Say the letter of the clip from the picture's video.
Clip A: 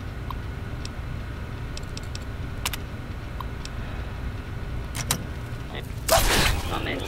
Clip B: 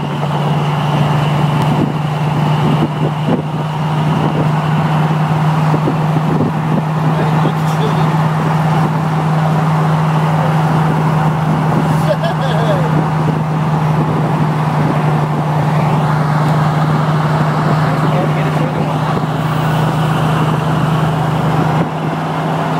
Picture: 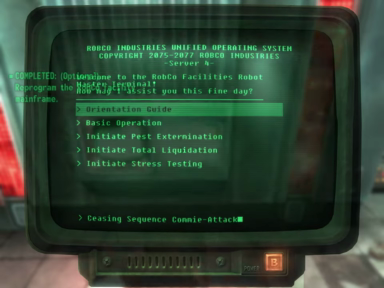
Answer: A